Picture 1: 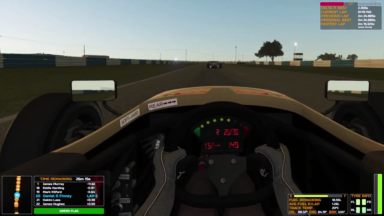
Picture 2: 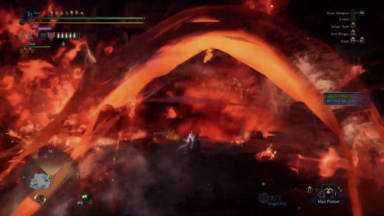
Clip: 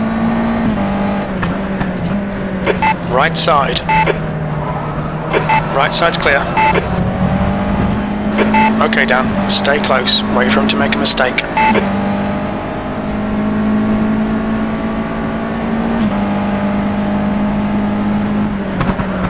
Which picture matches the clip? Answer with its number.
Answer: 1